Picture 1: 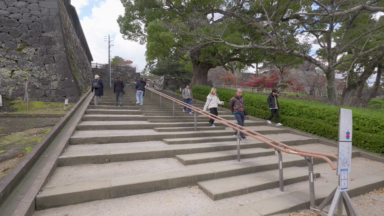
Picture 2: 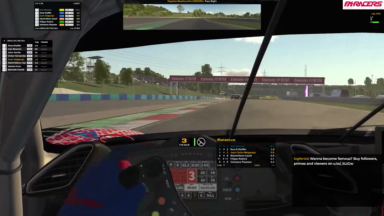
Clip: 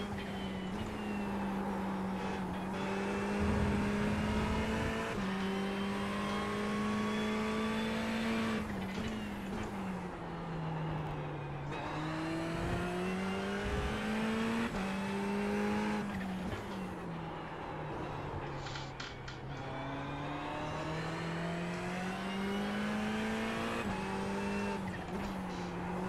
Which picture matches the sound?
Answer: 2